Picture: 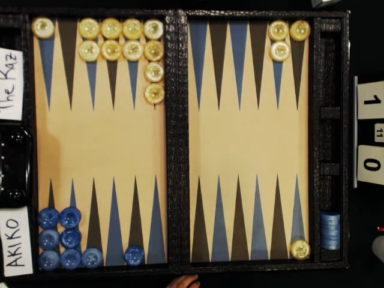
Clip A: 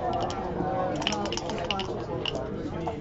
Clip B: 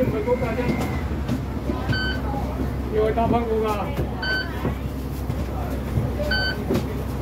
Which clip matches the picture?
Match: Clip A